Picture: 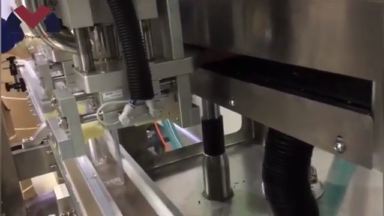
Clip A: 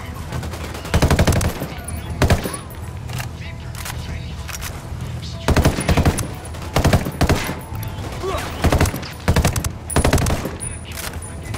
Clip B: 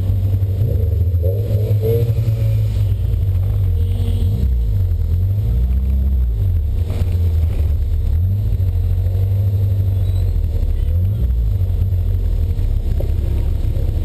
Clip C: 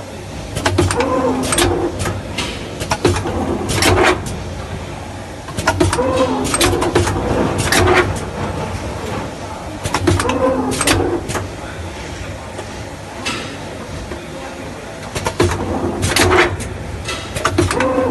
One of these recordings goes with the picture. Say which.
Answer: C